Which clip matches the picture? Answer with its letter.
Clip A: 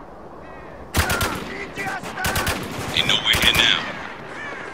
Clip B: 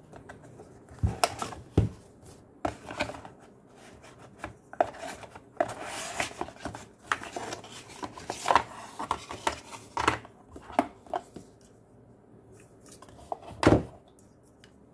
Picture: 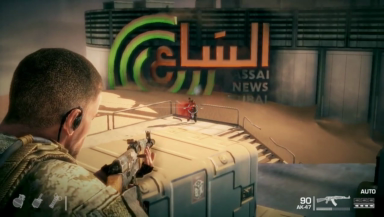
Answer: A